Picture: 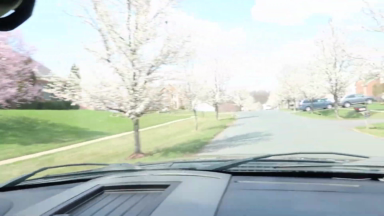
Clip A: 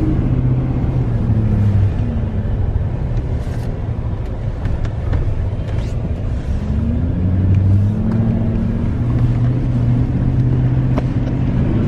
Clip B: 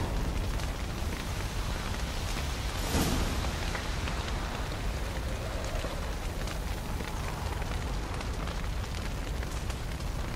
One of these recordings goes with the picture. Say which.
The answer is A